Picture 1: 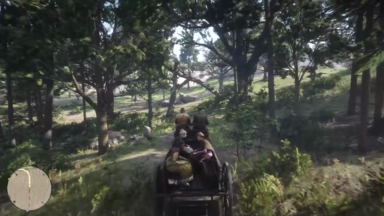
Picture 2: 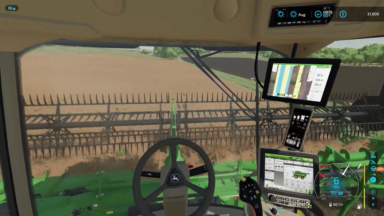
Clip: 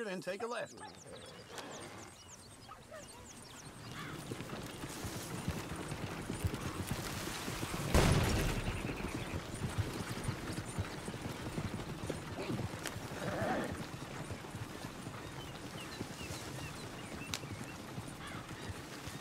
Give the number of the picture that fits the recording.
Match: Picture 1